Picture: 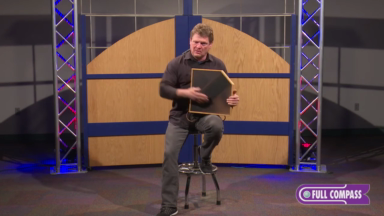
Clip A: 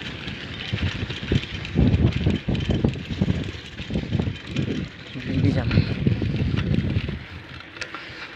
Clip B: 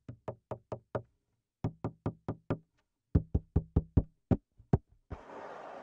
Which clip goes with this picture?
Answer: B